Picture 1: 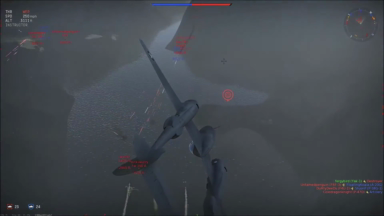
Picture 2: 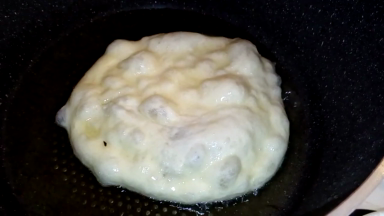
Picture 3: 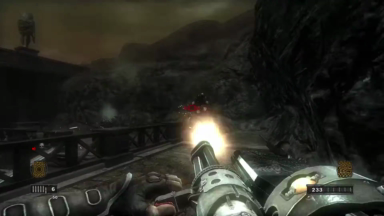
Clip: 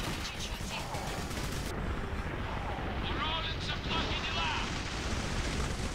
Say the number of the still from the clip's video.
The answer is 3